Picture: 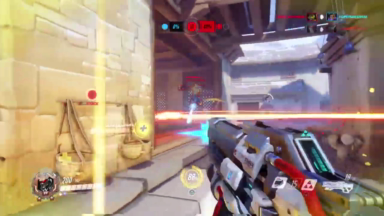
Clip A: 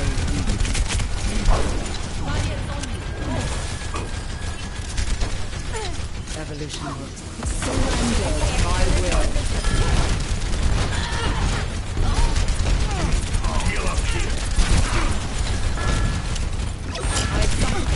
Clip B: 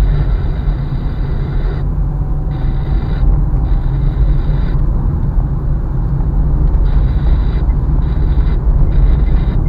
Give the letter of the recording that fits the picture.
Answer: A